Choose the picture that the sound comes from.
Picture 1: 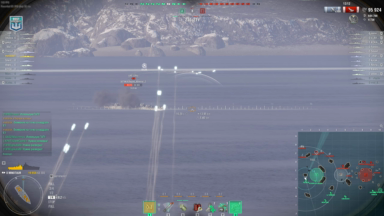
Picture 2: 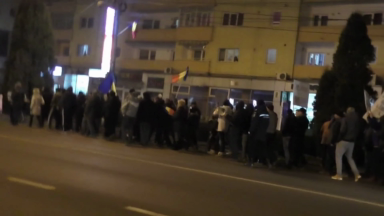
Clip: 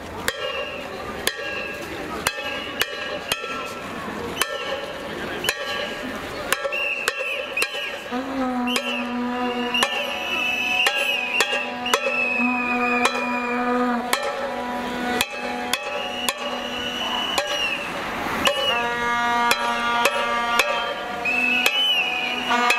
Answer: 2